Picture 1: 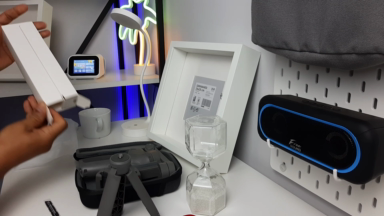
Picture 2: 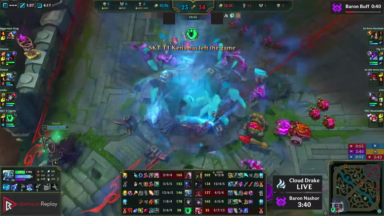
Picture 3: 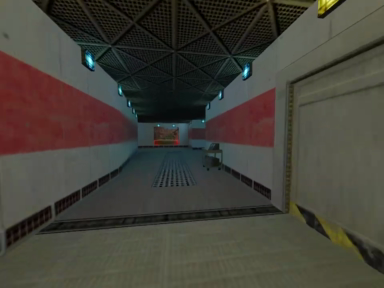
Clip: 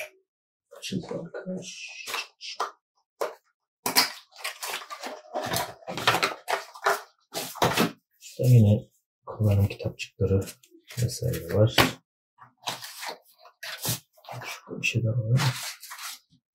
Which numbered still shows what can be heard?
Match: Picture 1